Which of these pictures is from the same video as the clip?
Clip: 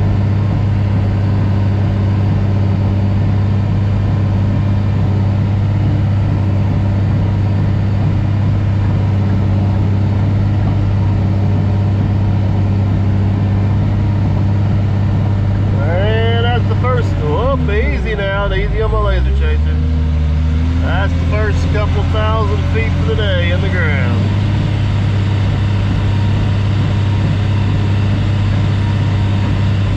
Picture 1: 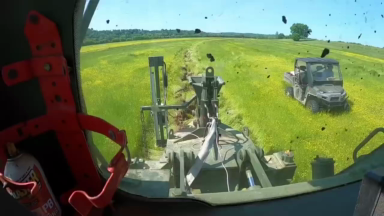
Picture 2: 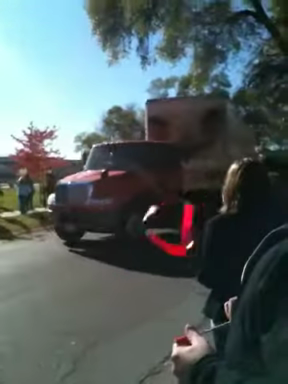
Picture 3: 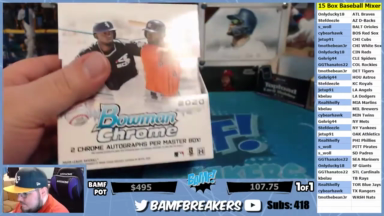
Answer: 1